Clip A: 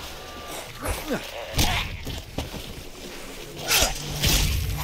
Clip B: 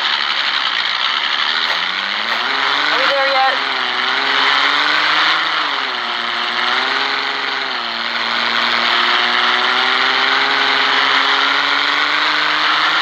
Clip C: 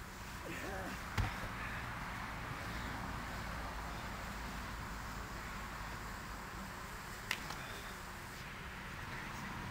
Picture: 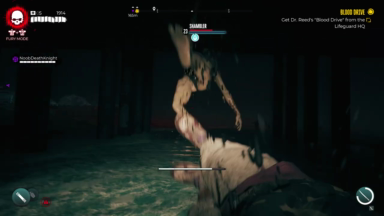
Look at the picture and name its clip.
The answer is A